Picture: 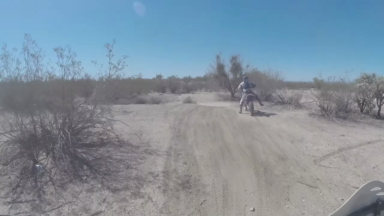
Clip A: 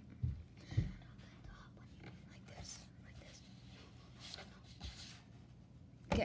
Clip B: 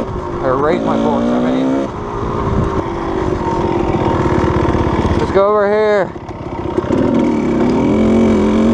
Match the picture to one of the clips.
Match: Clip B